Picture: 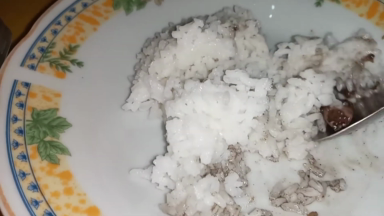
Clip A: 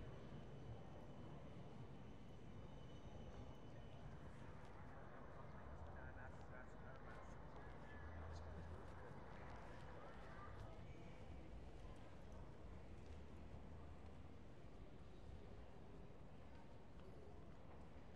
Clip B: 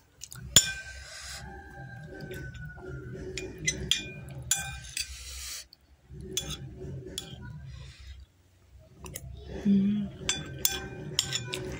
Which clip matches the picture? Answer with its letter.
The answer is B